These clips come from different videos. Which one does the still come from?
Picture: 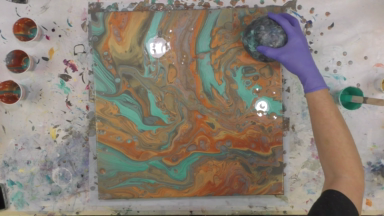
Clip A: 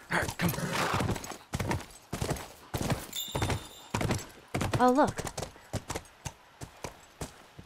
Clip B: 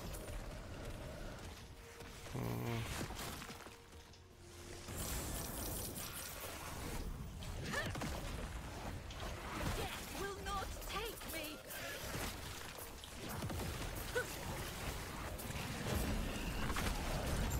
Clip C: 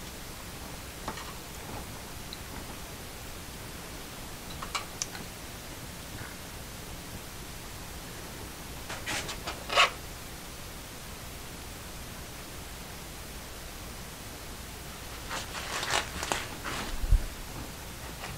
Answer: C